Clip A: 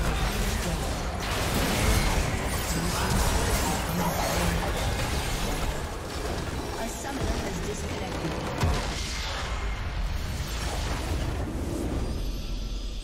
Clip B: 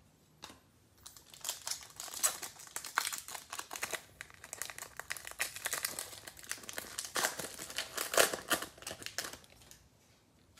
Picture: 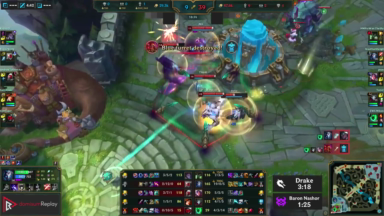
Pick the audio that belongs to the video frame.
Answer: A